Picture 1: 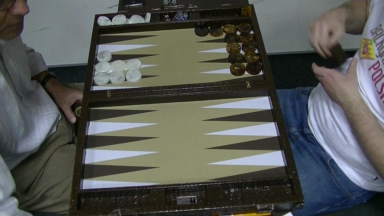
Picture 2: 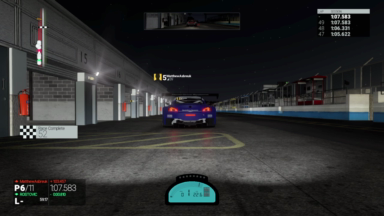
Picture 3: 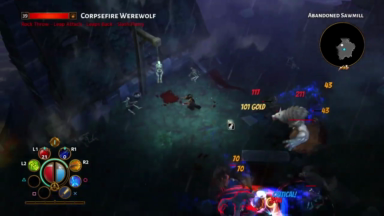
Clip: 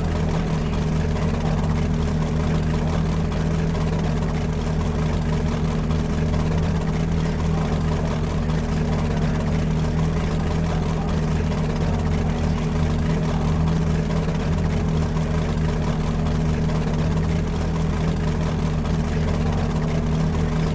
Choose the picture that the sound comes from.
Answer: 2